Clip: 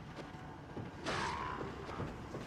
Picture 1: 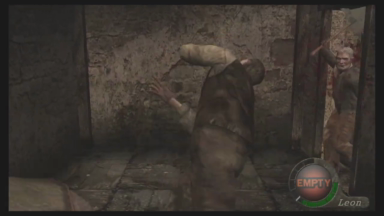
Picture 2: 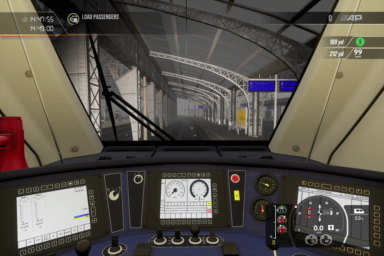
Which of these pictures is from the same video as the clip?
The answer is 1